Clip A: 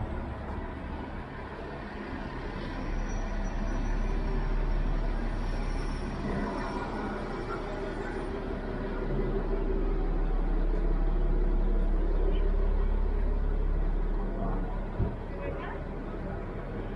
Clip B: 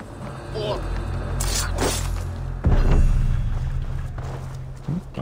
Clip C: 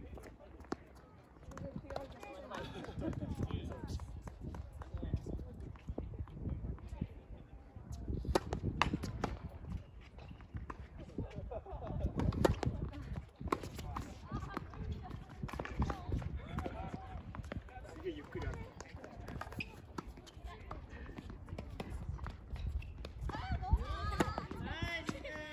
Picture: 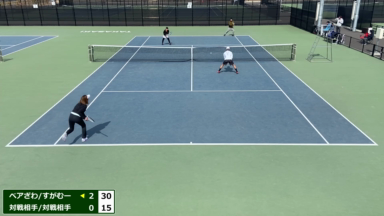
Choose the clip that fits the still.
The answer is C